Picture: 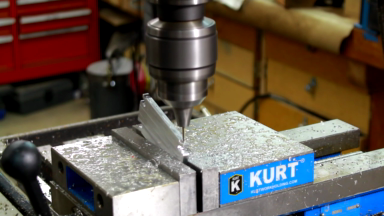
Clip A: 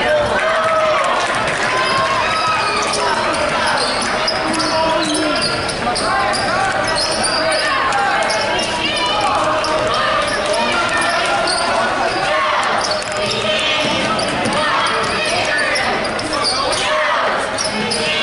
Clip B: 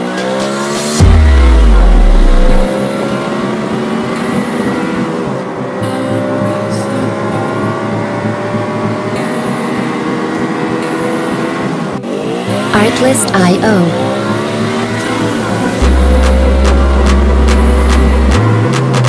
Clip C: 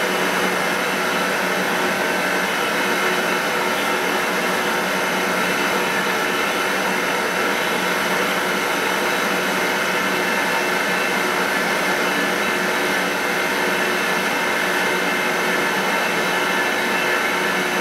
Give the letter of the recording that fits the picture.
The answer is C